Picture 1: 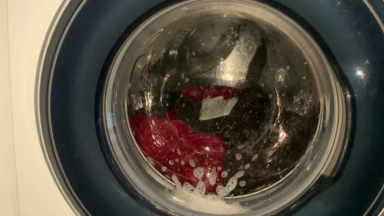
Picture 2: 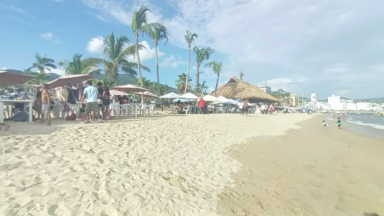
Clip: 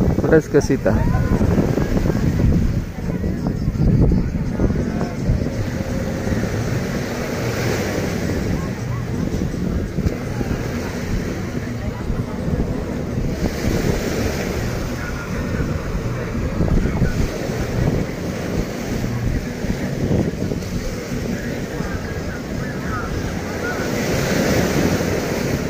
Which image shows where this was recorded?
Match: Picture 2